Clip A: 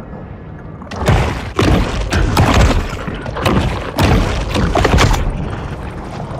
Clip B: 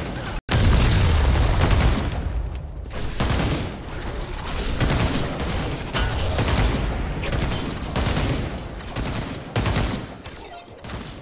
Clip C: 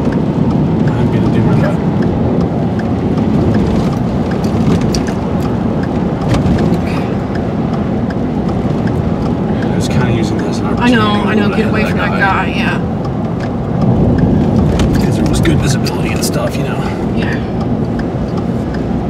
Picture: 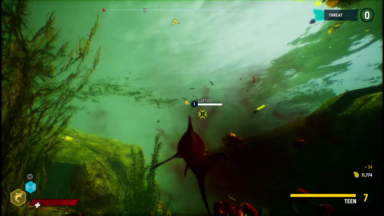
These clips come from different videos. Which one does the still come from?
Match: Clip A